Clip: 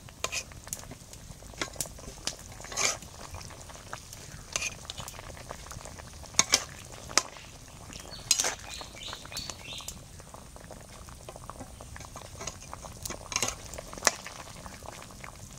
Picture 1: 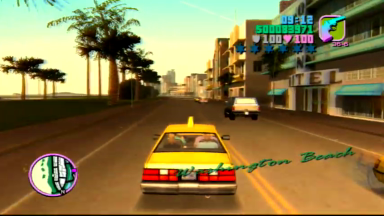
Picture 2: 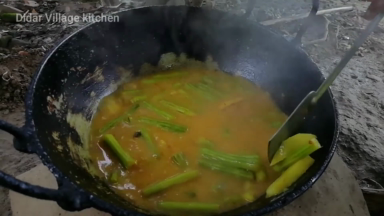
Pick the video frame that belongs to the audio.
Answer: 2